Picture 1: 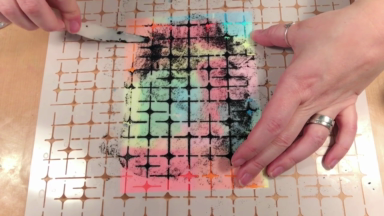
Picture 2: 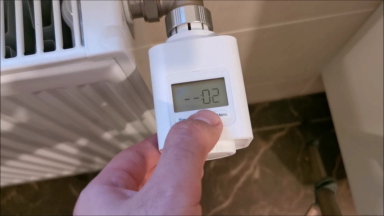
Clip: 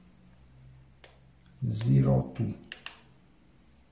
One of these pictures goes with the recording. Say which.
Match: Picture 2